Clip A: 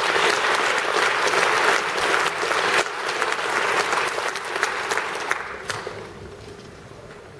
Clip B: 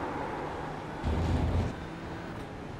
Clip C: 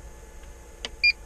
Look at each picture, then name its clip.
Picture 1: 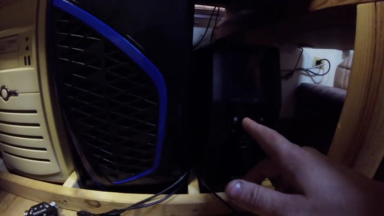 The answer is C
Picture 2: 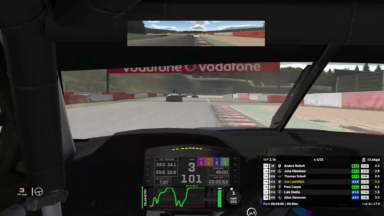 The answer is B